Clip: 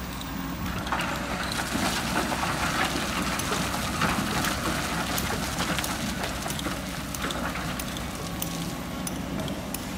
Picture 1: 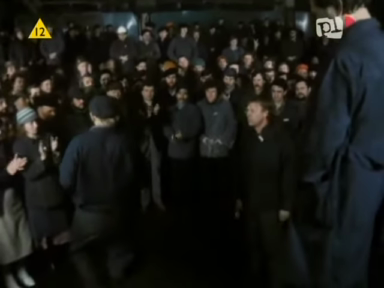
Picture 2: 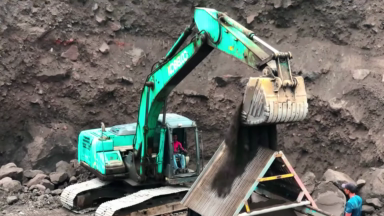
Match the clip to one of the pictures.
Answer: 2